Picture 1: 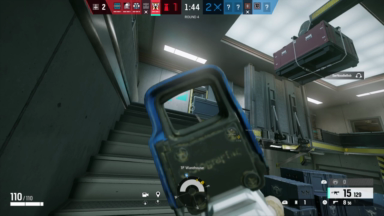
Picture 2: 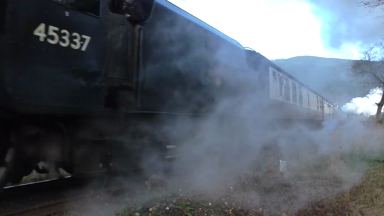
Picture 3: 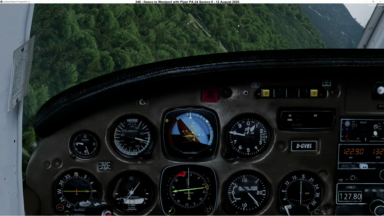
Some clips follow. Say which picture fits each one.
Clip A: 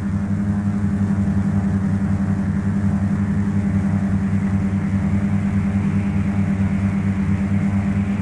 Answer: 3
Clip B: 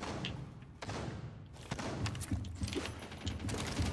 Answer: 1